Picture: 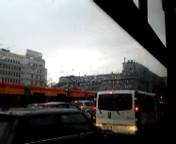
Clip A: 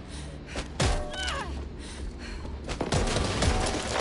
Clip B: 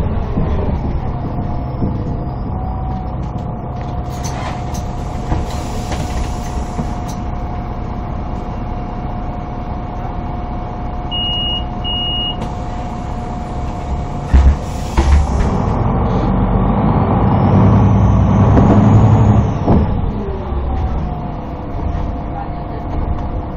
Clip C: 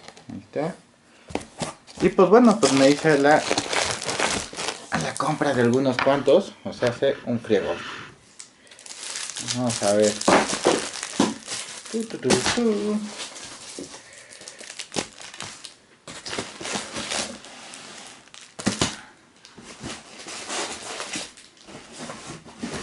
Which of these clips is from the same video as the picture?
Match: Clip B